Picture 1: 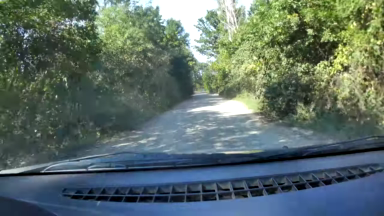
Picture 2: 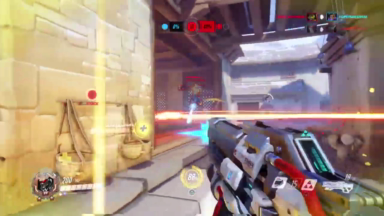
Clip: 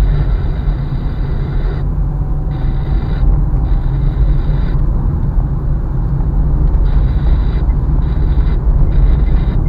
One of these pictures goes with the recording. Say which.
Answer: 1